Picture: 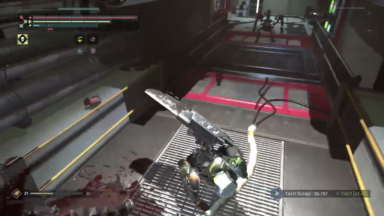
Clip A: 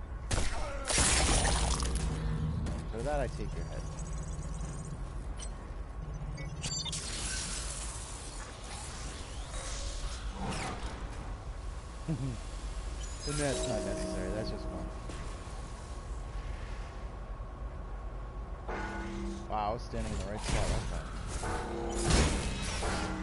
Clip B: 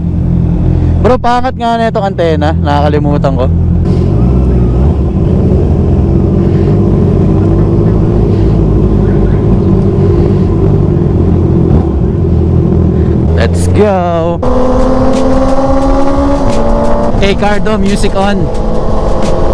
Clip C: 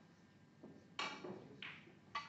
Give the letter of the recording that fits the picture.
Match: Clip A